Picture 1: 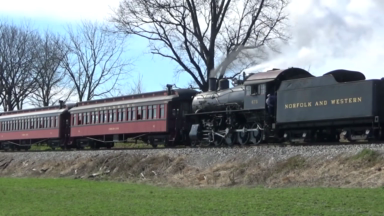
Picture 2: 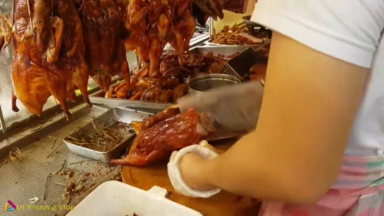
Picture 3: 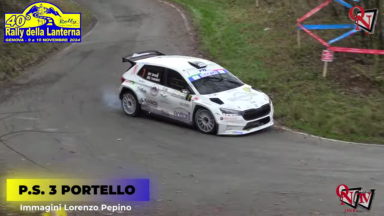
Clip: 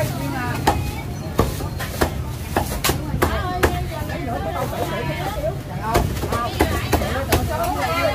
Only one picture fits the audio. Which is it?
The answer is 2